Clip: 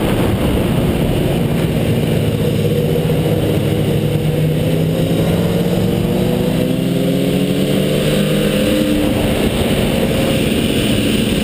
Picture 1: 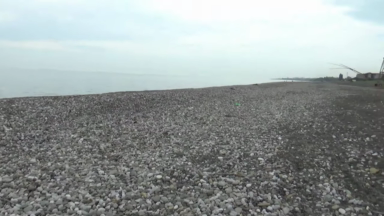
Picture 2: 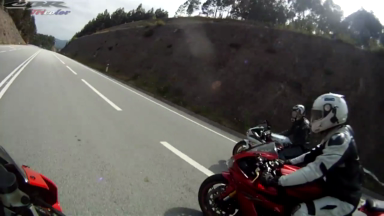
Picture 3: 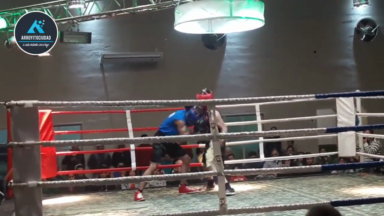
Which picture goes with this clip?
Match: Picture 2